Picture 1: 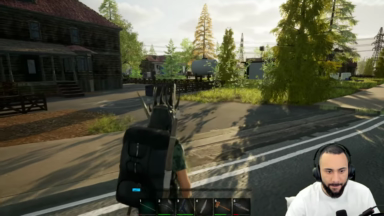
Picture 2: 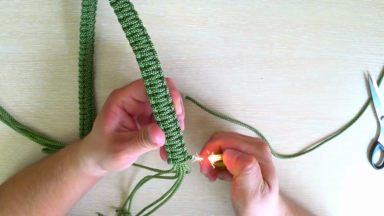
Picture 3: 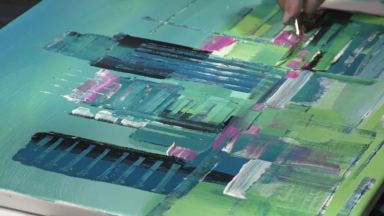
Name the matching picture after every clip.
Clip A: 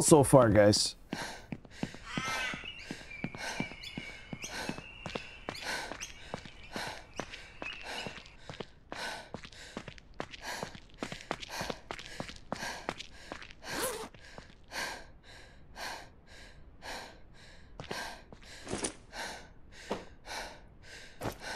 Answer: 1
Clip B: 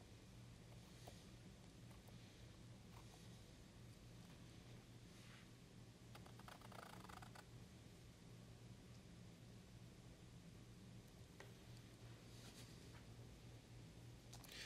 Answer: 3